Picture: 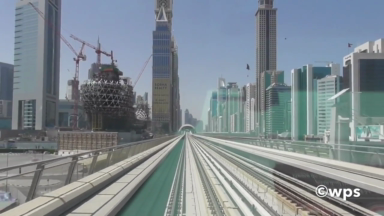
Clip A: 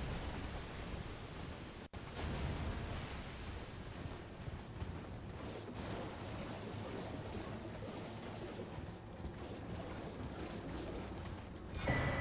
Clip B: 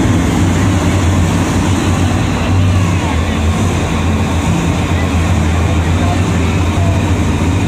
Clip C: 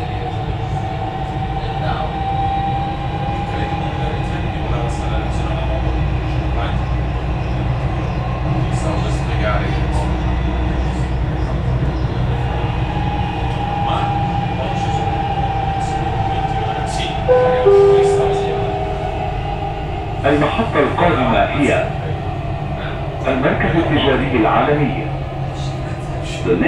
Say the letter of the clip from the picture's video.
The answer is C